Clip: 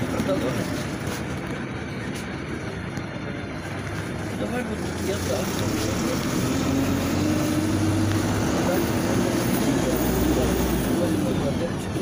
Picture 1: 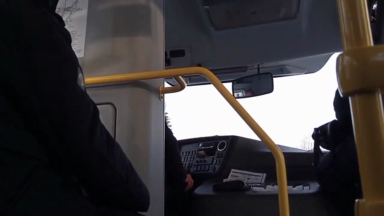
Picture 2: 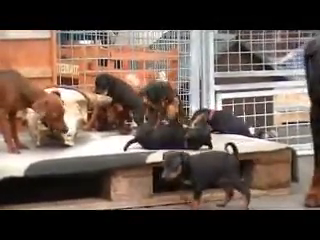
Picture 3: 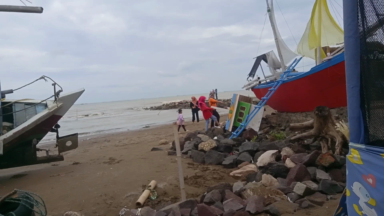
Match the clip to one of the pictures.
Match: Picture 1